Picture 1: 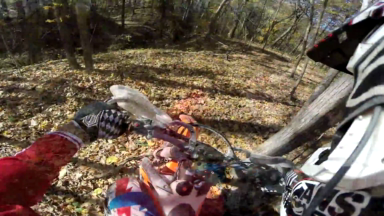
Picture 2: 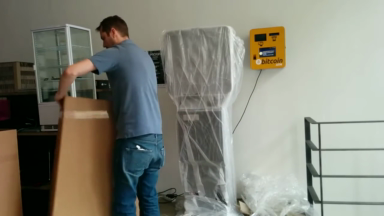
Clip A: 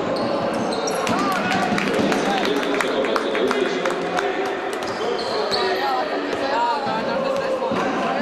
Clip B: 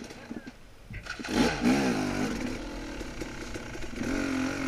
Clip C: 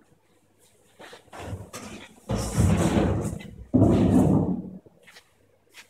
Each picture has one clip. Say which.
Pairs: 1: B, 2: C